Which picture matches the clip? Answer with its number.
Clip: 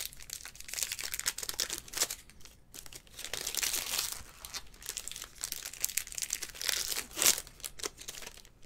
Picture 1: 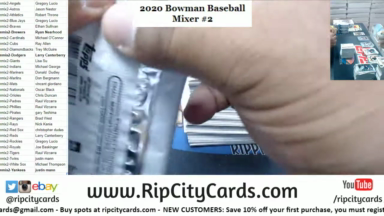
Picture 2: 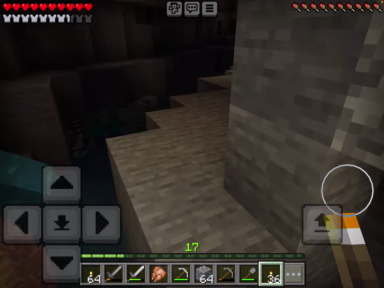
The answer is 1